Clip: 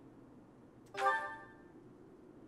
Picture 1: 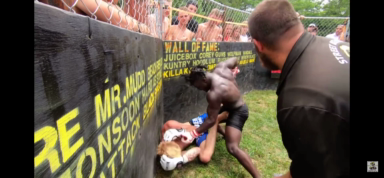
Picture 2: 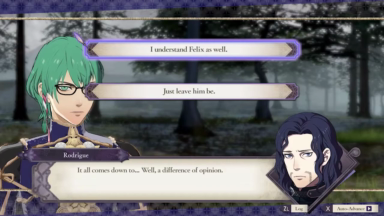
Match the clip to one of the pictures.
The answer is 2